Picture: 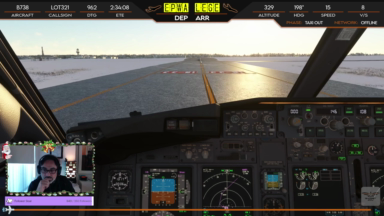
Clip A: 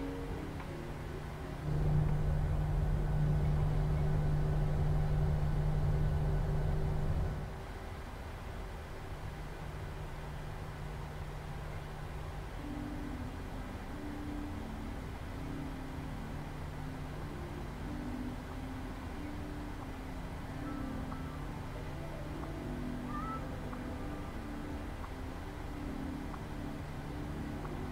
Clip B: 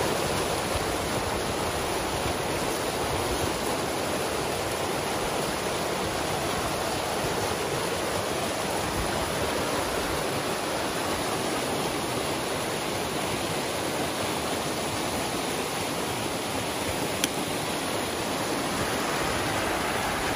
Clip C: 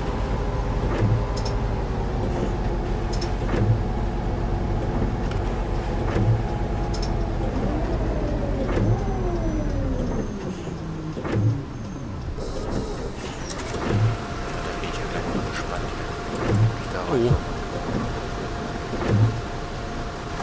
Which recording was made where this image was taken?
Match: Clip A